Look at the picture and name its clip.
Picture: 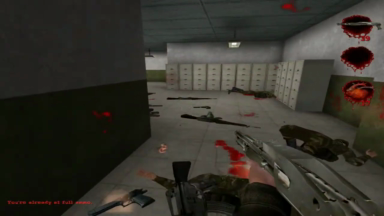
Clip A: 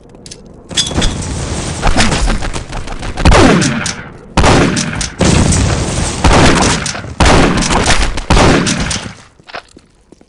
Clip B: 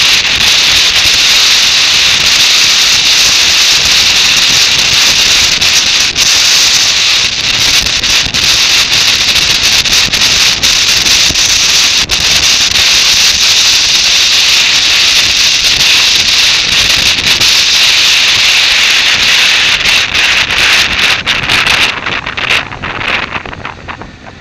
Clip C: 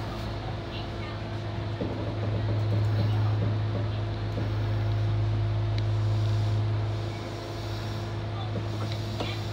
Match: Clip A